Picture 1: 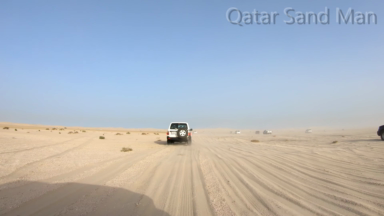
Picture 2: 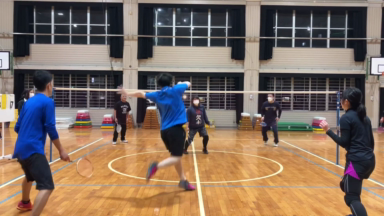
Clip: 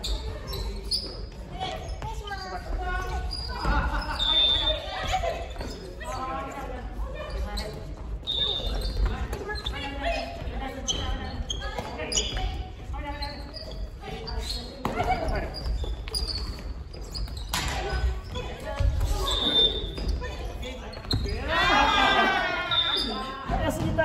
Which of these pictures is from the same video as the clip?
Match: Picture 2